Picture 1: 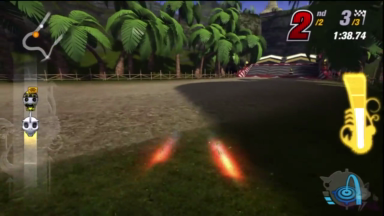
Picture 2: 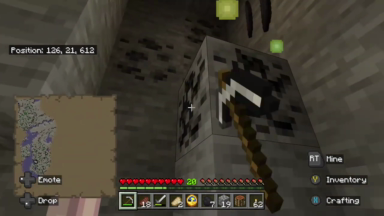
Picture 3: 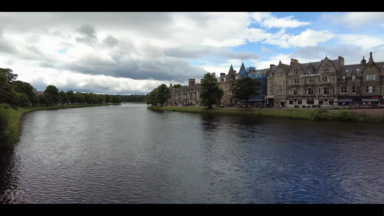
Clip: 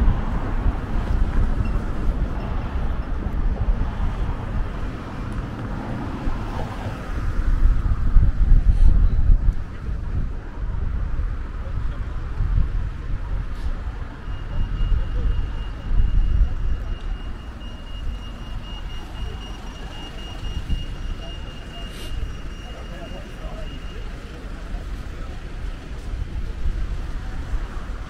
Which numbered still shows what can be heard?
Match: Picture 3